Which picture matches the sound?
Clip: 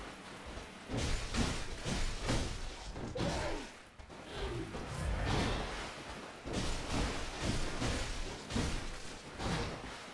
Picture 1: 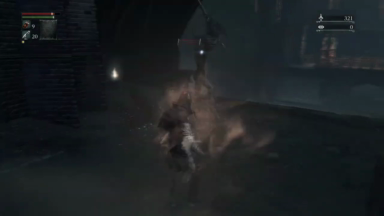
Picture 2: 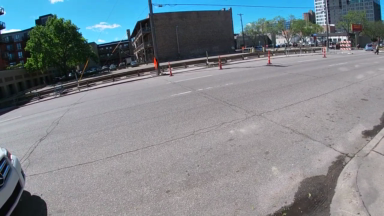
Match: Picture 1